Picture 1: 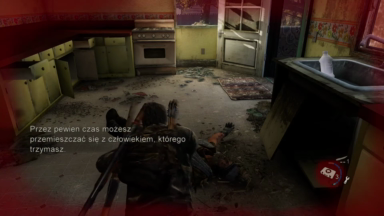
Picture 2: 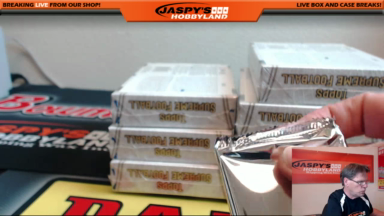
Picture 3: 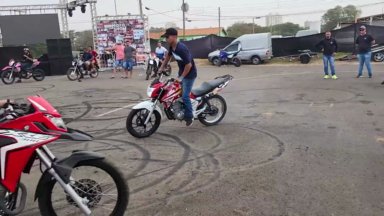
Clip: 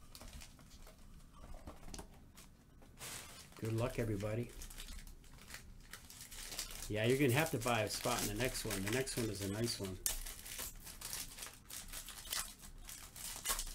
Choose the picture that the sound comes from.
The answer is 2